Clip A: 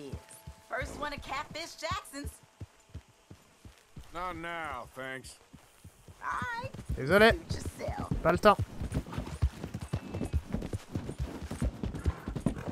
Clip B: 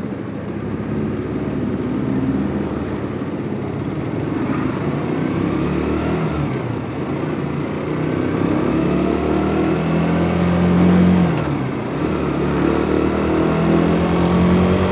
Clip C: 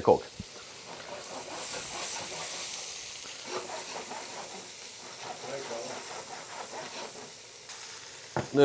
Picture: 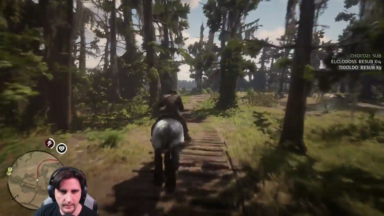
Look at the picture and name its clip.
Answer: A